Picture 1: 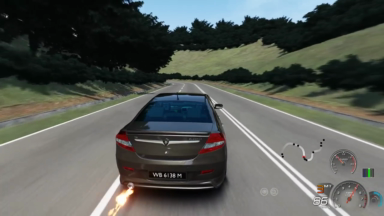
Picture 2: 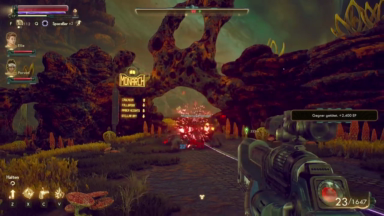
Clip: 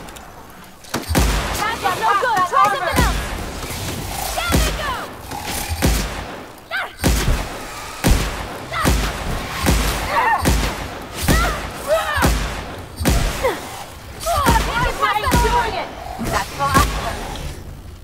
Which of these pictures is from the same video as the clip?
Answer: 2